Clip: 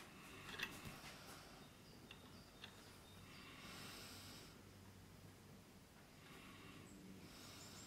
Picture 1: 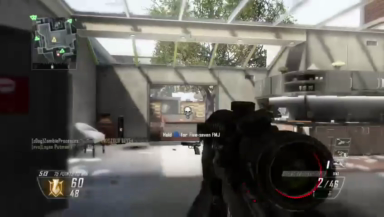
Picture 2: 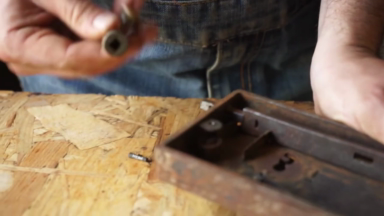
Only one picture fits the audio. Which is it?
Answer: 2